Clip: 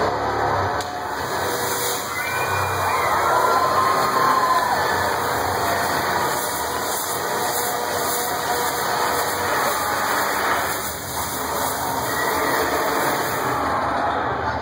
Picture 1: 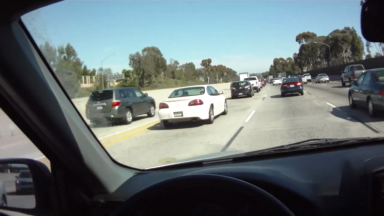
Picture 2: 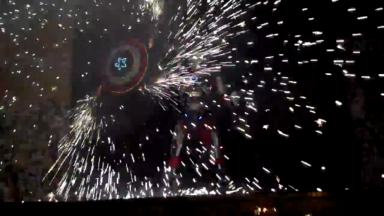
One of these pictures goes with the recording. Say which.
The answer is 2